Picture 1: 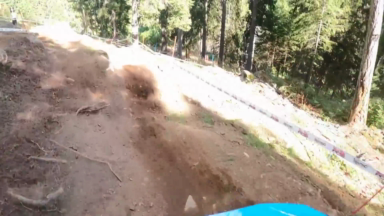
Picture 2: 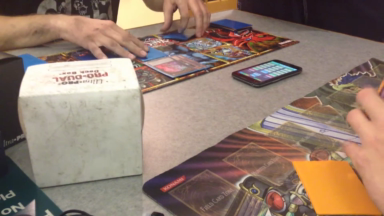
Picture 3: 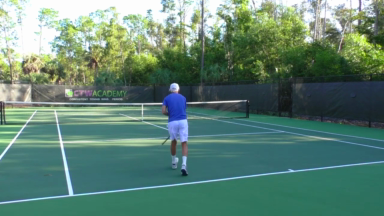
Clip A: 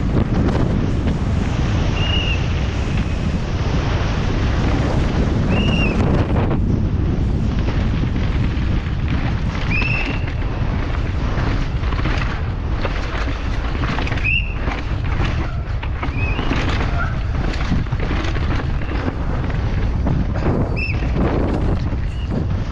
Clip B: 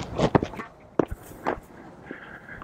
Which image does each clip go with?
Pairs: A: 1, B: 3